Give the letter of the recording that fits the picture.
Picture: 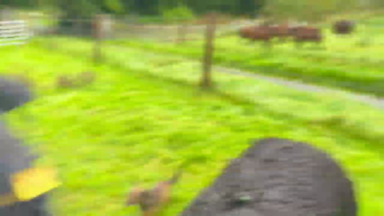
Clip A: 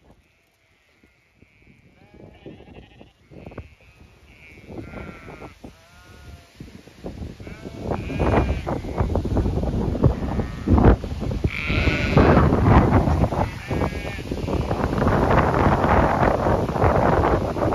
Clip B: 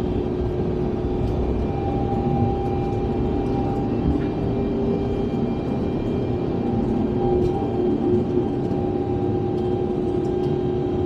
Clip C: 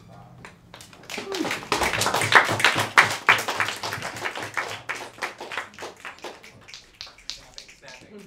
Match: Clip A